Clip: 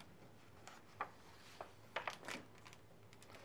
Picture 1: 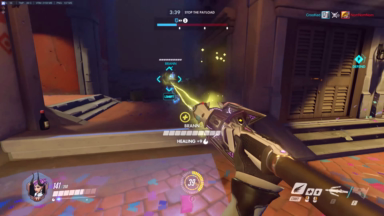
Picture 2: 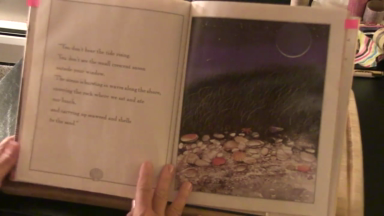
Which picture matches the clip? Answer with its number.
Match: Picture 2